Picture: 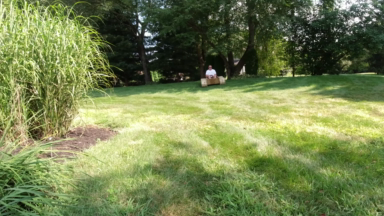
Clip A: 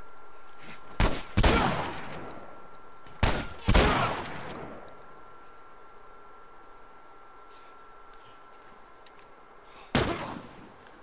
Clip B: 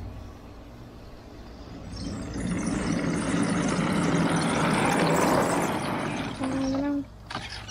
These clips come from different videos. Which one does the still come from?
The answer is B